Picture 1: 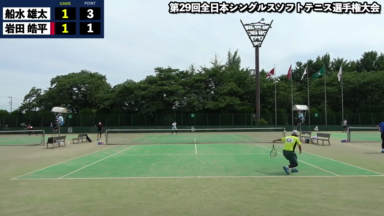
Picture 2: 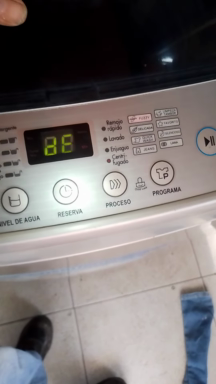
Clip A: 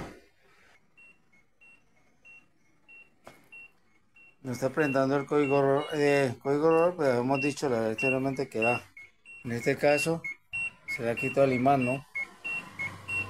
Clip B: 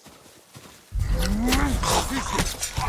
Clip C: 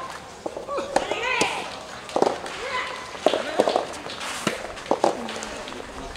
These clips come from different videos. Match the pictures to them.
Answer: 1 C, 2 A